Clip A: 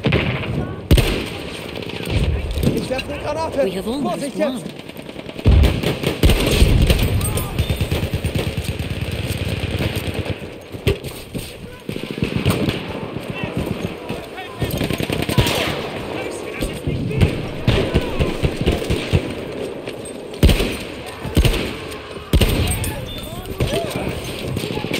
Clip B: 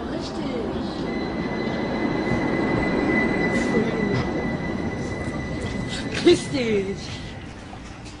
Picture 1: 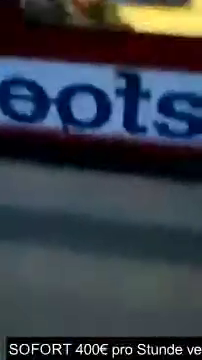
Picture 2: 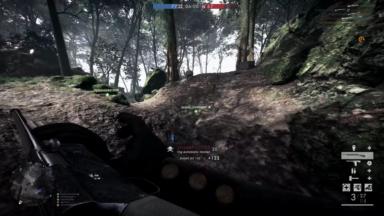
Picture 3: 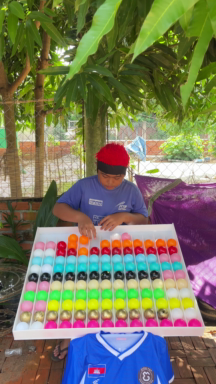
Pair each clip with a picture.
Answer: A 2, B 1